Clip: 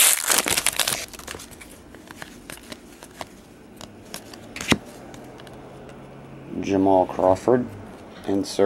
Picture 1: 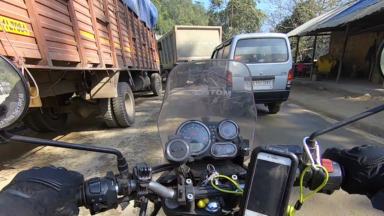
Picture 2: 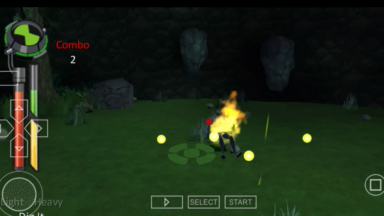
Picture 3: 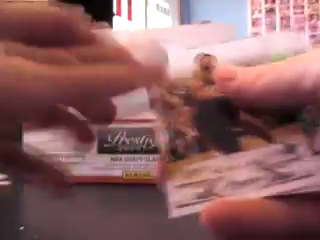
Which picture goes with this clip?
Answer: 3